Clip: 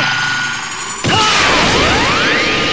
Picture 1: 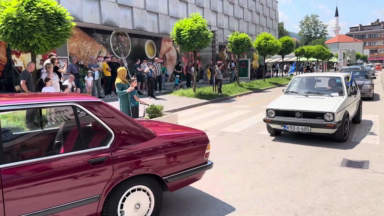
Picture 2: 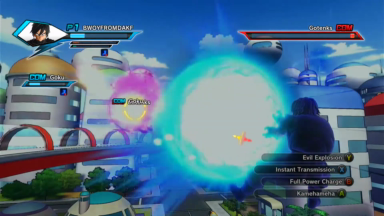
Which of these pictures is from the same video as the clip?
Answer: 2